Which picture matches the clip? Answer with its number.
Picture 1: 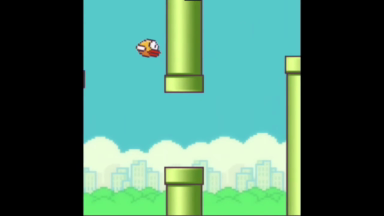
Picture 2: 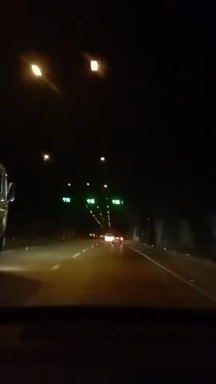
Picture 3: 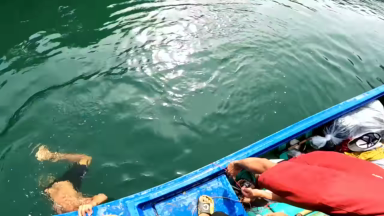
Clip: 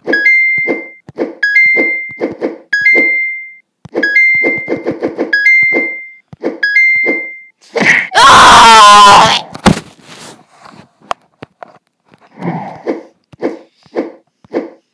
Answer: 1